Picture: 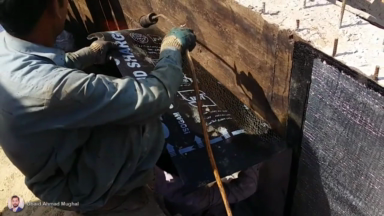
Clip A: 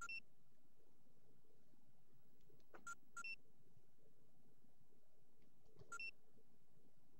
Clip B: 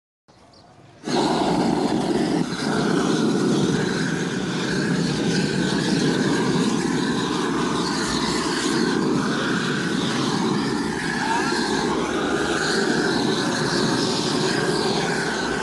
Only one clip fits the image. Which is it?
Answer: B